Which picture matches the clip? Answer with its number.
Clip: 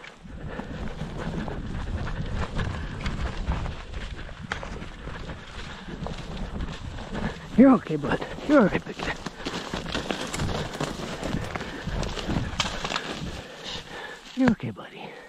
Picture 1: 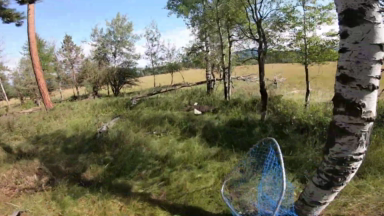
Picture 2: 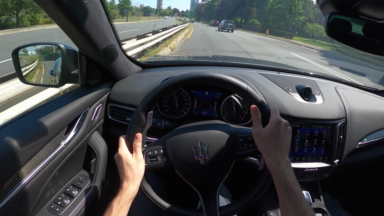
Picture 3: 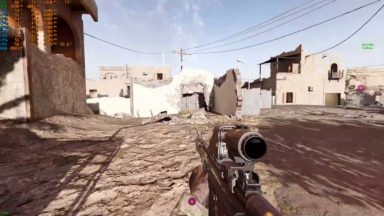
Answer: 1